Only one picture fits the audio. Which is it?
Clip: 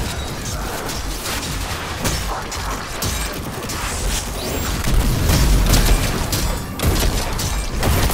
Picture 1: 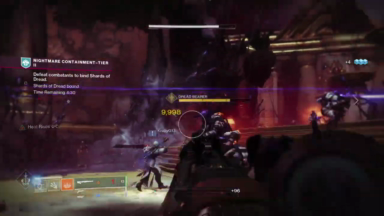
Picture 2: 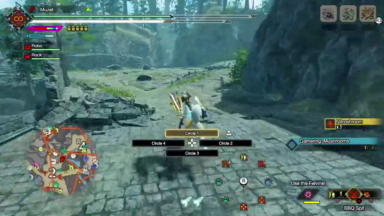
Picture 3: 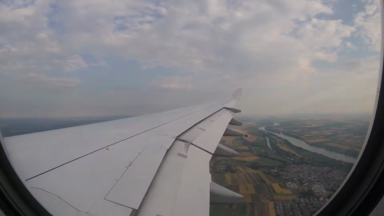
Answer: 1